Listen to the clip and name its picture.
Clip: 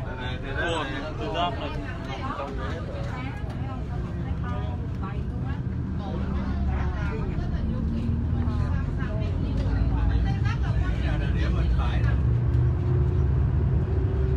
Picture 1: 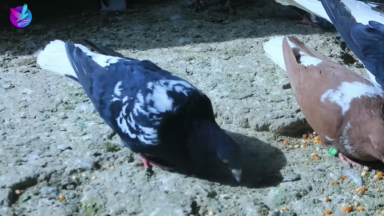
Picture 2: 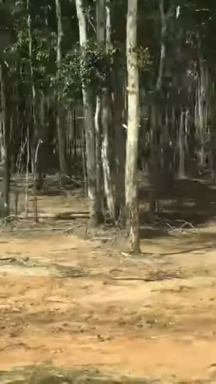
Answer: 2